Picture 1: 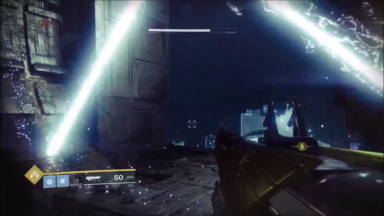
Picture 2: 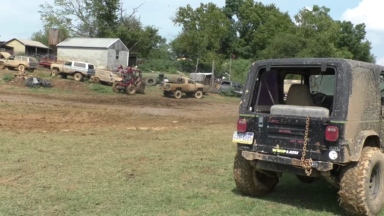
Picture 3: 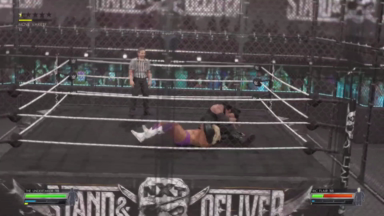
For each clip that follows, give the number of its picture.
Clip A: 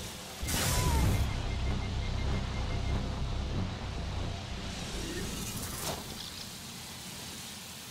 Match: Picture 1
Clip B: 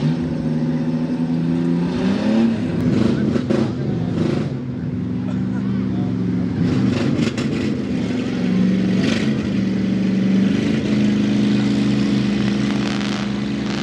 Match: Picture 2